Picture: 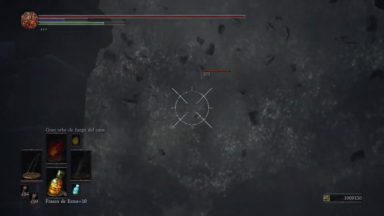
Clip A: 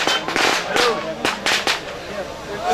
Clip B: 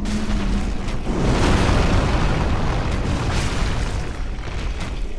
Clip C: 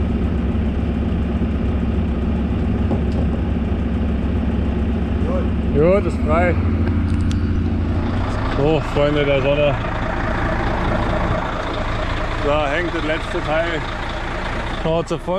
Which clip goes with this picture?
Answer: B